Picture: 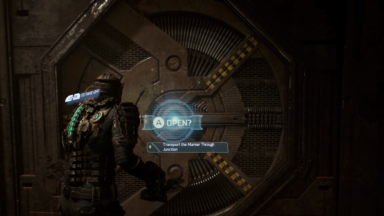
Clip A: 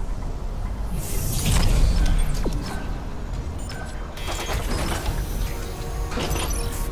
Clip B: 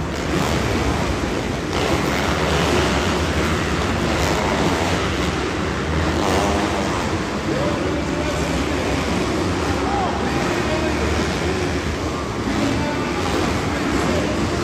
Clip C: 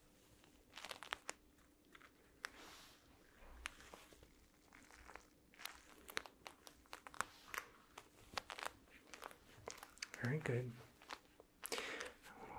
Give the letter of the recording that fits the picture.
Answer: A